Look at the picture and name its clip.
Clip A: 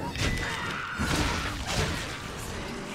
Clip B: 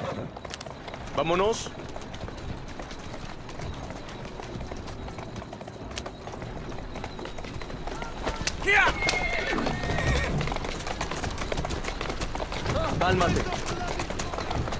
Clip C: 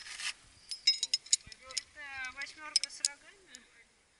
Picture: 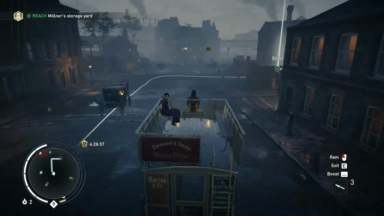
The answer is B